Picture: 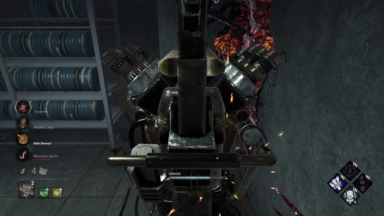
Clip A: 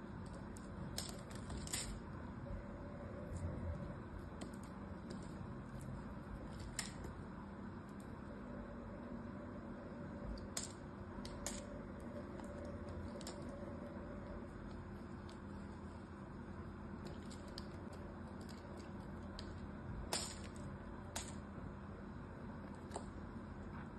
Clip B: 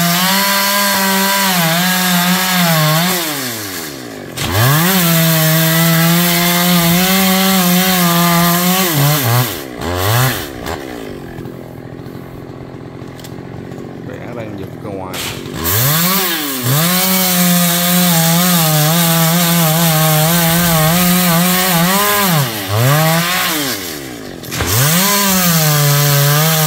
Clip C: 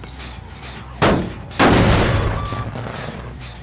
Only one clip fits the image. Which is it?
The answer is C